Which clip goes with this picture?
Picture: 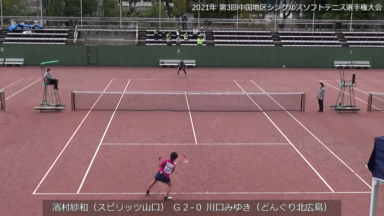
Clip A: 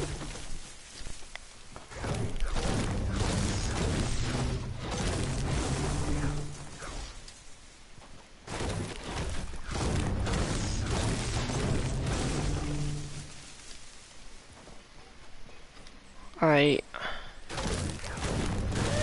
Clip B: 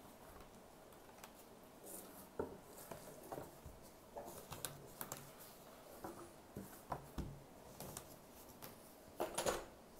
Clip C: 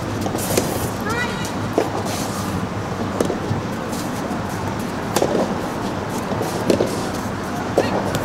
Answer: C